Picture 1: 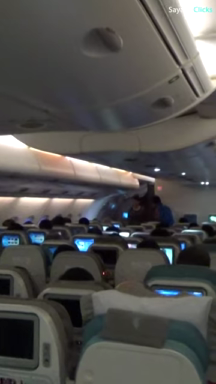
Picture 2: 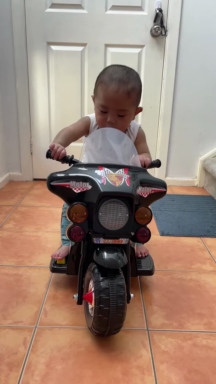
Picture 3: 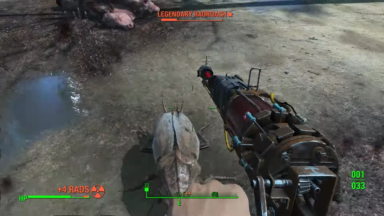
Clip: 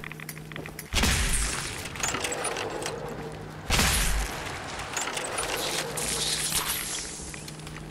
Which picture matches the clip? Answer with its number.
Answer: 3